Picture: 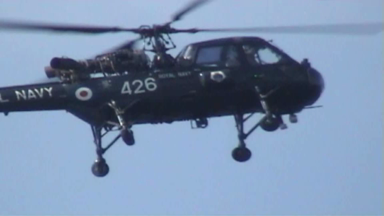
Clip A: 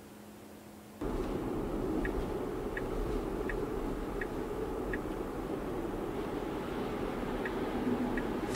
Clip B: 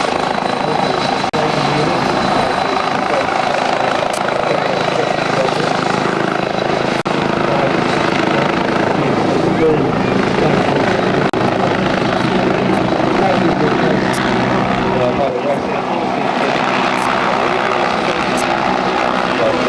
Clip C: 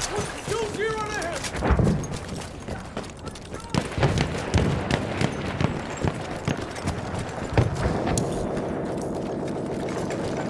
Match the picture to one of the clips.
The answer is B